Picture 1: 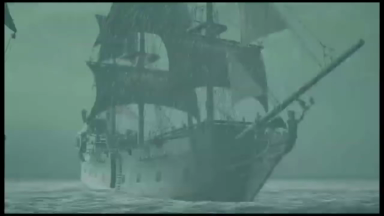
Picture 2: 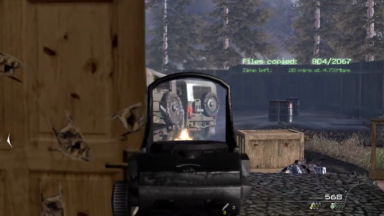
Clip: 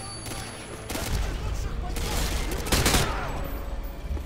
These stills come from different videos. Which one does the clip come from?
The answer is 2